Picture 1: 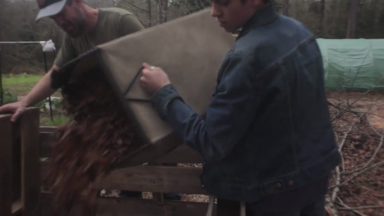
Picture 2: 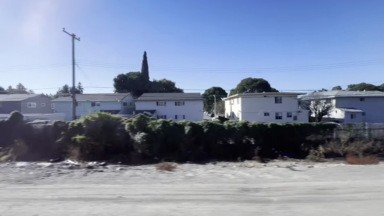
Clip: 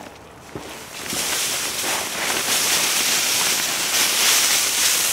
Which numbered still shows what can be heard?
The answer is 1